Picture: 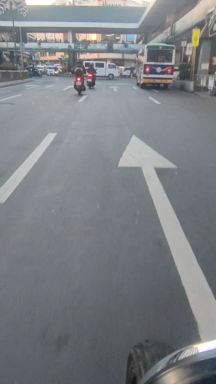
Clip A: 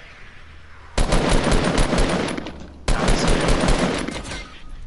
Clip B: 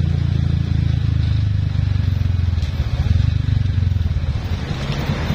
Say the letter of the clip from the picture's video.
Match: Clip B